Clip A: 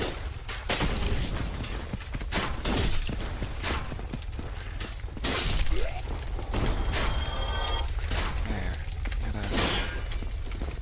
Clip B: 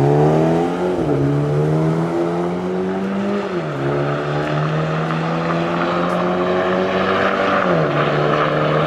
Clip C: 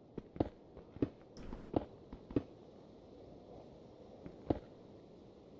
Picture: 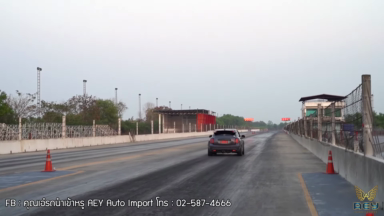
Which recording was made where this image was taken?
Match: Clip B